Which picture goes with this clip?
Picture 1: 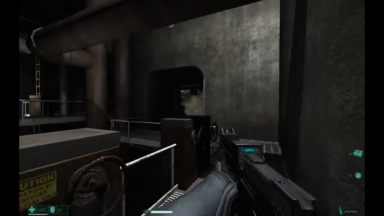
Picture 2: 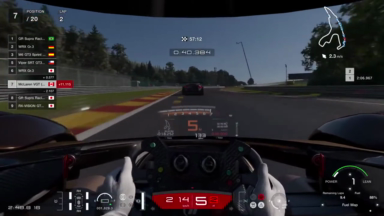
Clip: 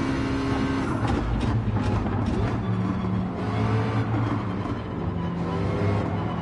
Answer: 2